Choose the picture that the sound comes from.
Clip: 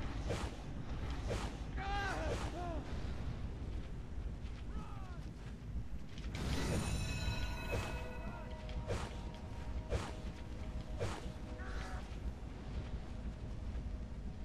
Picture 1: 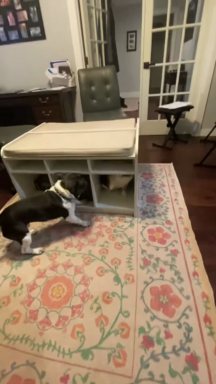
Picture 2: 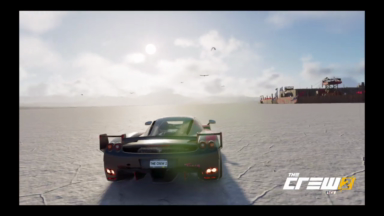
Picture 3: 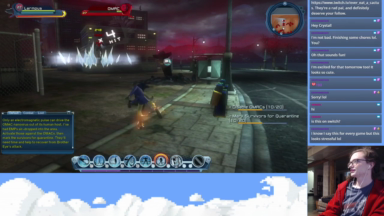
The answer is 3